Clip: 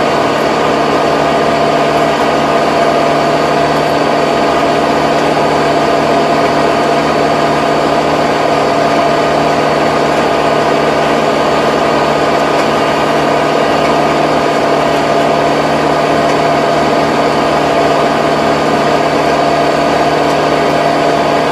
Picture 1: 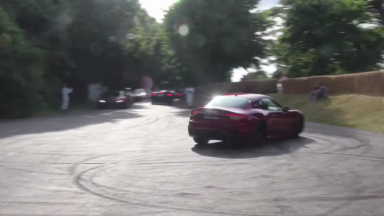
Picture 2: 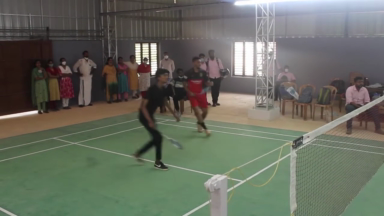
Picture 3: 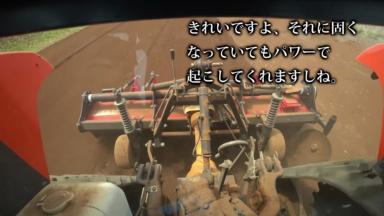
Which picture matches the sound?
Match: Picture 3